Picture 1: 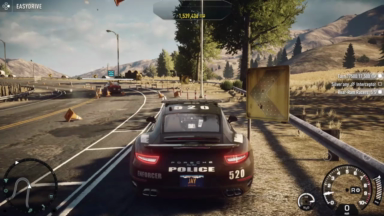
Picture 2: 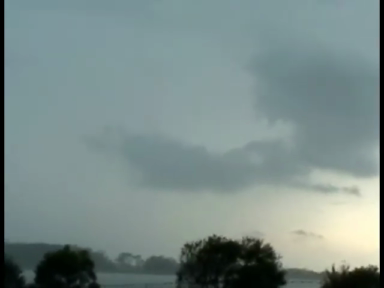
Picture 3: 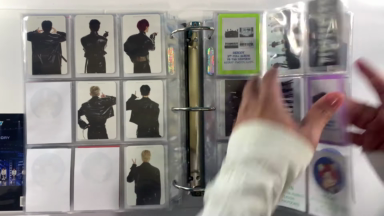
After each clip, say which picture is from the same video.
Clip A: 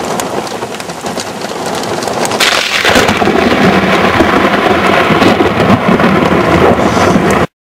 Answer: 2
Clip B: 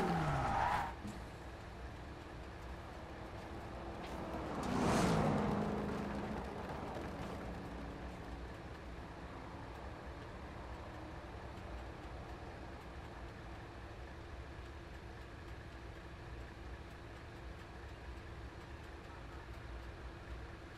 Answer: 1